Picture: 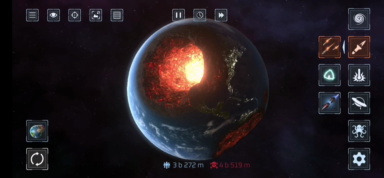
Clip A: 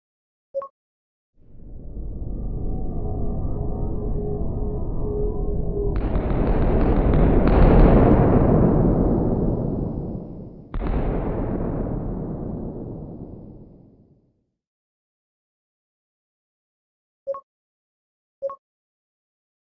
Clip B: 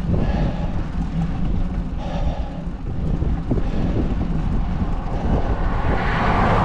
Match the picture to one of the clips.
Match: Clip A